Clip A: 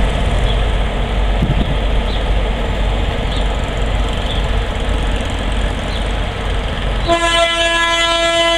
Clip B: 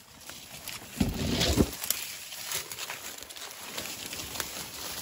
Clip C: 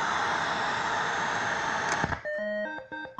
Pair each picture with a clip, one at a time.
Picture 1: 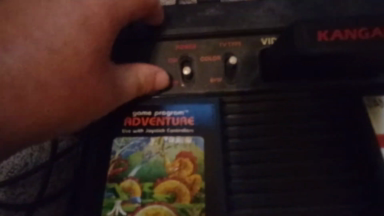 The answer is C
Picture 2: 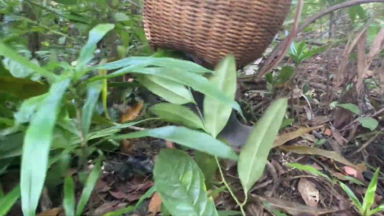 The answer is B